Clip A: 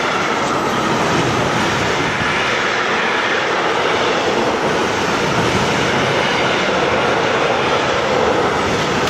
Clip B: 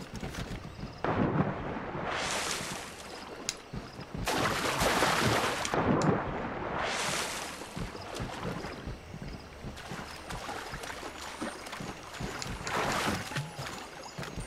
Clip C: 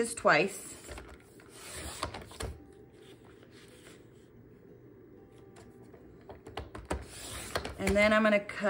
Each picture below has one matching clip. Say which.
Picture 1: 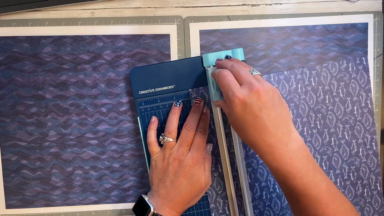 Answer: C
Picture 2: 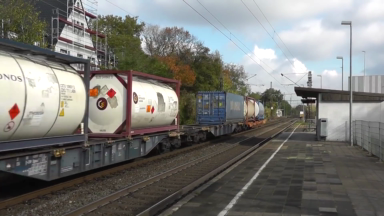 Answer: A